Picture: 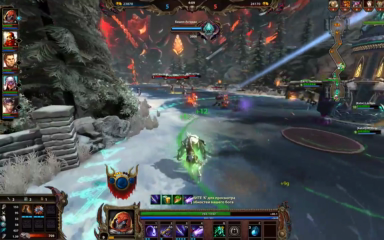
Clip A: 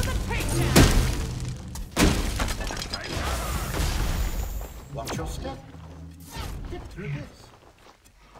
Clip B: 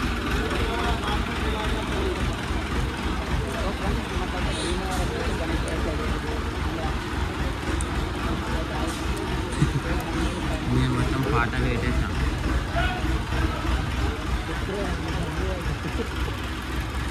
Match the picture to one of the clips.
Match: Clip A